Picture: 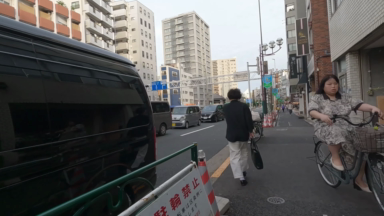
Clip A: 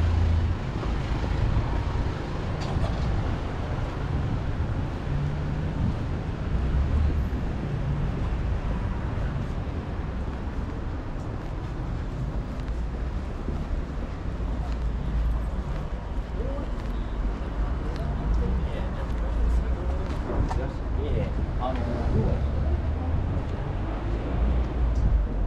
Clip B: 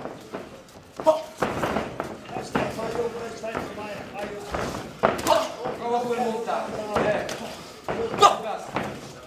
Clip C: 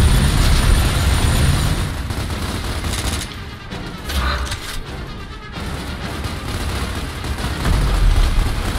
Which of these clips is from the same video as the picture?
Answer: A